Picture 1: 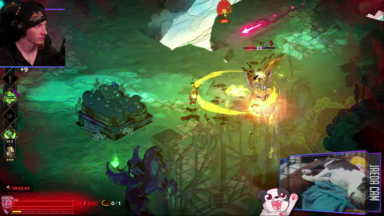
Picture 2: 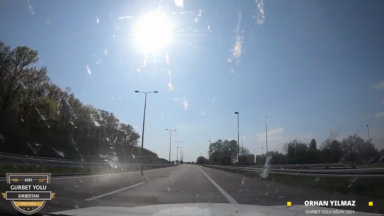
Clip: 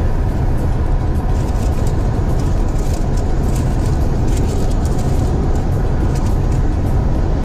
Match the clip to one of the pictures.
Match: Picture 2